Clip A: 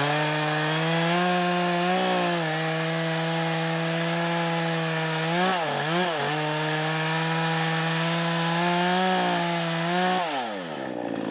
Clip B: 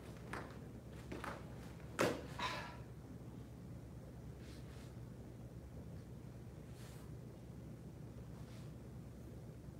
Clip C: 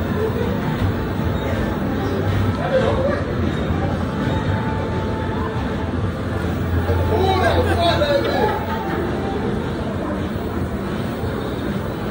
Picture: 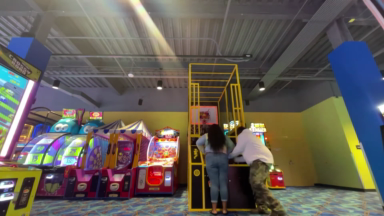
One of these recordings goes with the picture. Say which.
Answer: C